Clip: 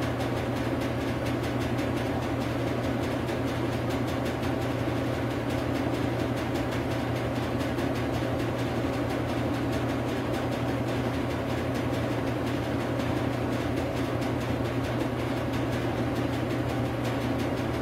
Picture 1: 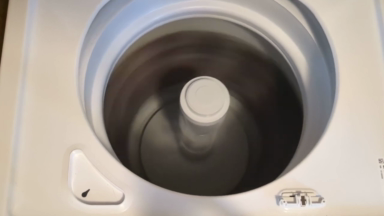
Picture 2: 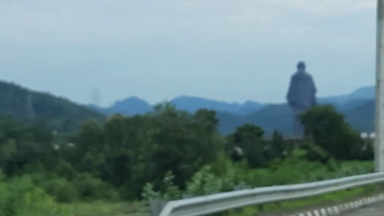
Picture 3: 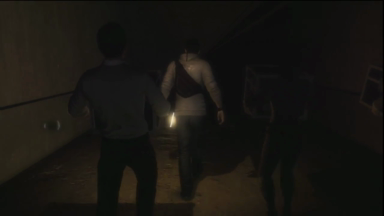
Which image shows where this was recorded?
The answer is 1